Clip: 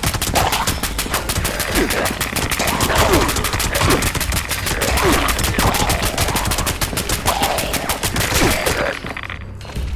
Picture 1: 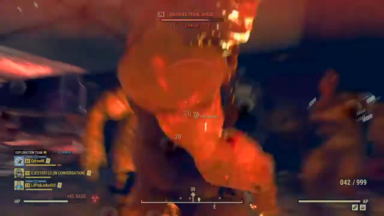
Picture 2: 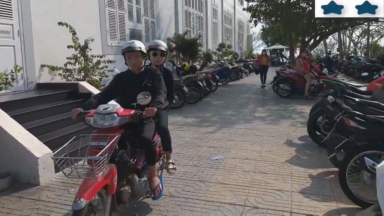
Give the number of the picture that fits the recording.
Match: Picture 1